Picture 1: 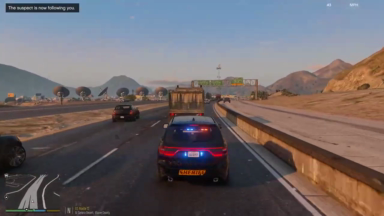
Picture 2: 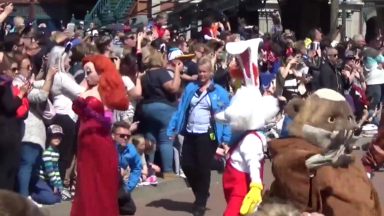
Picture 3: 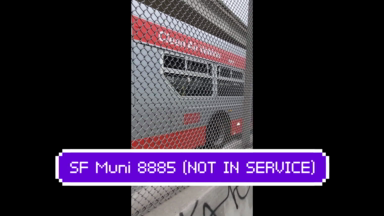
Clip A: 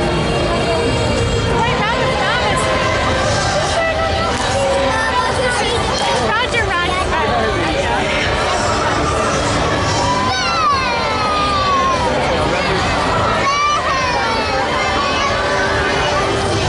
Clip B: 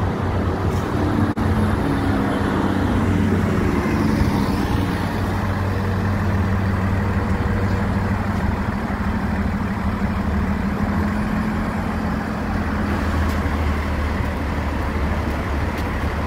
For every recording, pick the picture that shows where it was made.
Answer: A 2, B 3